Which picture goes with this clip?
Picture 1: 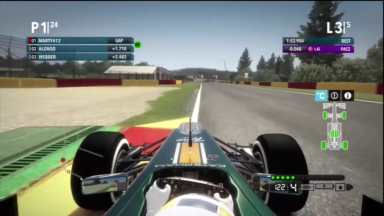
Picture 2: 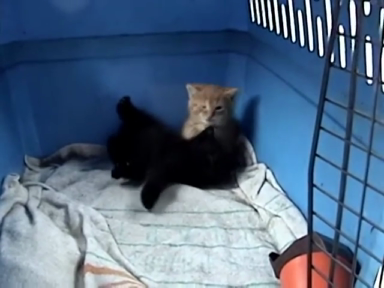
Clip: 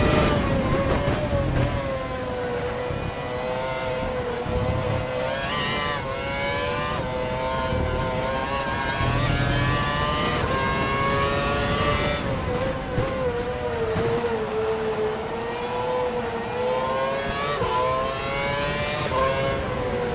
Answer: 1